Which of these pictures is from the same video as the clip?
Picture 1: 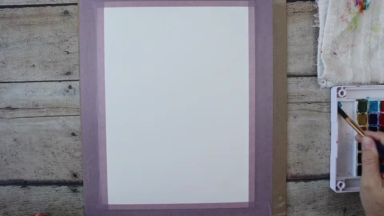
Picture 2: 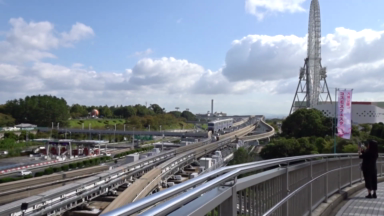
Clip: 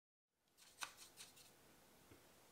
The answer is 1